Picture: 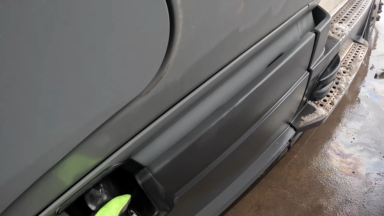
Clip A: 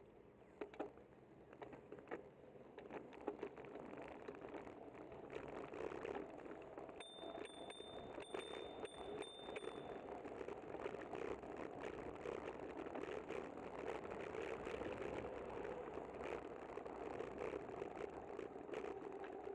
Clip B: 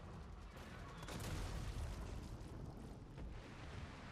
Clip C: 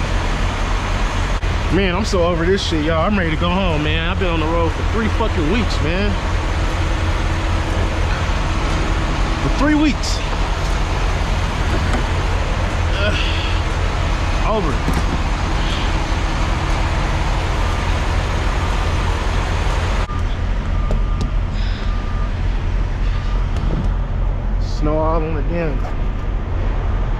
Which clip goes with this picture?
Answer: C